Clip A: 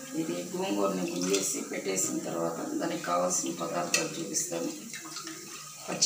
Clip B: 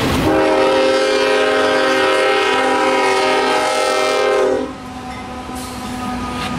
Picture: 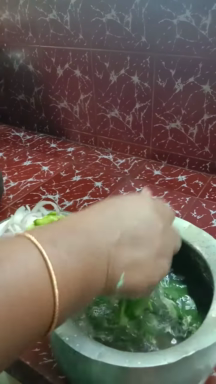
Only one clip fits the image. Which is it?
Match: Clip A